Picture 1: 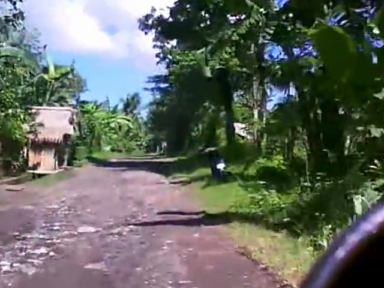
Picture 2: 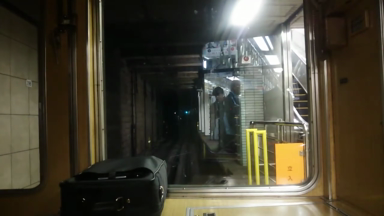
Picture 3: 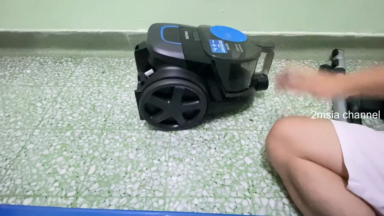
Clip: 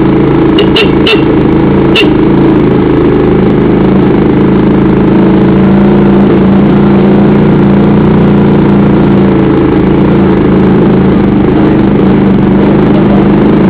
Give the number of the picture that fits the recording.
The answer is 1